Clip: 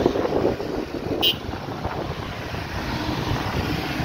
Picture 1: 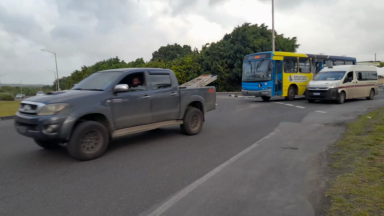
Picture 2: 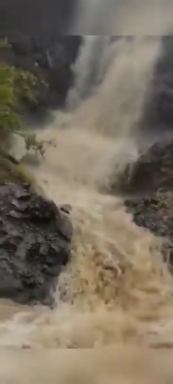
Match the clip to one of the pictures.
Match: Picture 1